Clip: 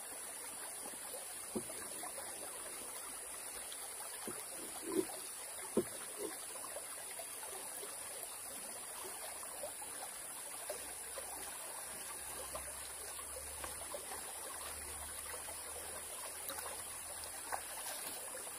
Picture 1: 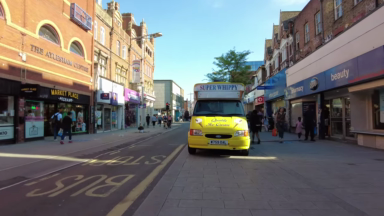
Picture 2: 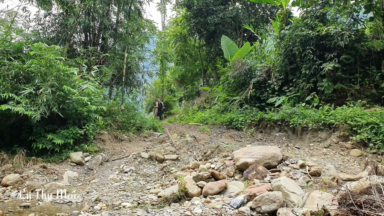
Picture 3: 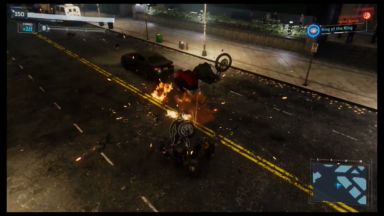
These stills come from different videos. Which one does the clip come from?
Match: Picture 2